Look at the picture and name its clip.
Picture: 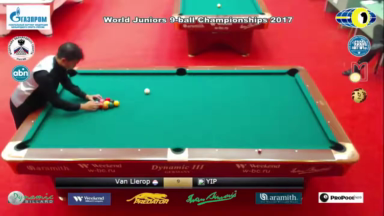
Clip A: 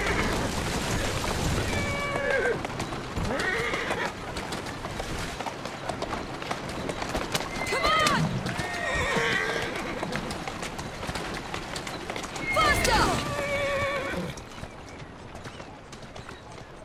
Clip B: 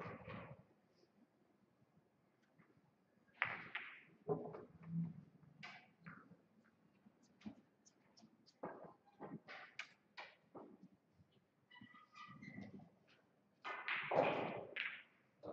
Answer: B